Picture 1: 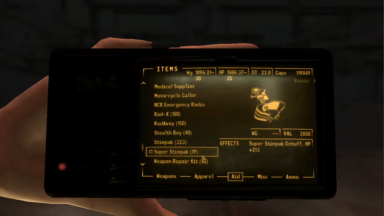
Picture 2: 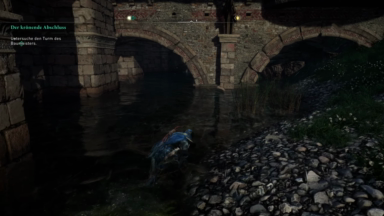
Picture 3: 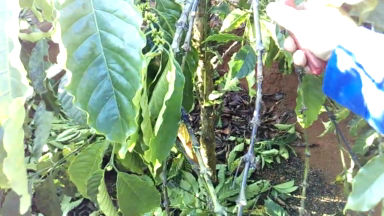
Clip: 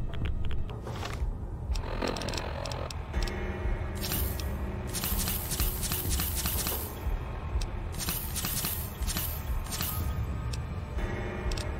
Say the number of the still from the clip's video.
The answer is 1